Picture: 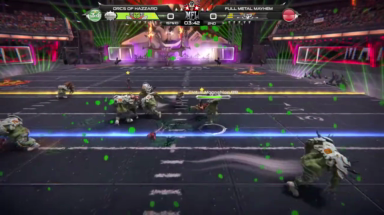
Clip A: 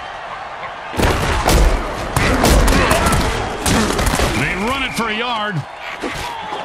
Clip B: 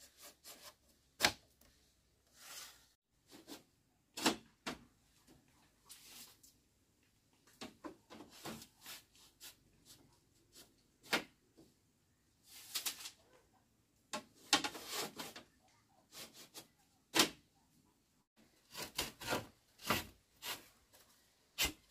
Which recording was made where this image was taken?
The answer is A